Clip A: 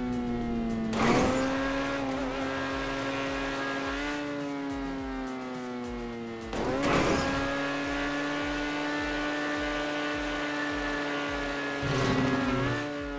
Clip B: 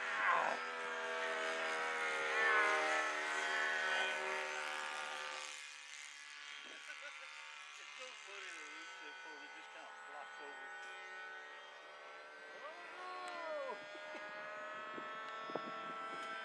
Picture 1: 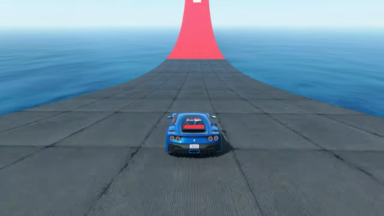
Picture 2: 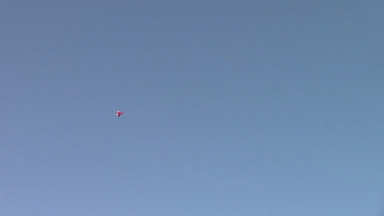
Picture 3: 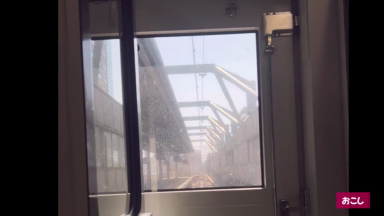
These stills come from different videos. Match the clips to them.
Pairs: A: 1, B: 2